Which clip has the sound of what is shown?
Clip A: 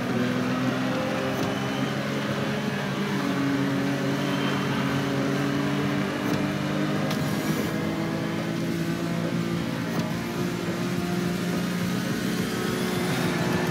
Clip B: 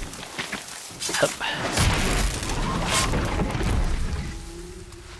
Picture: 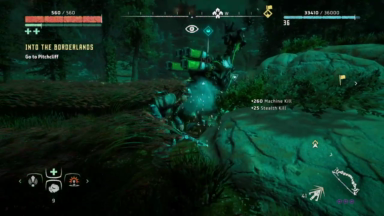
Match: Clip B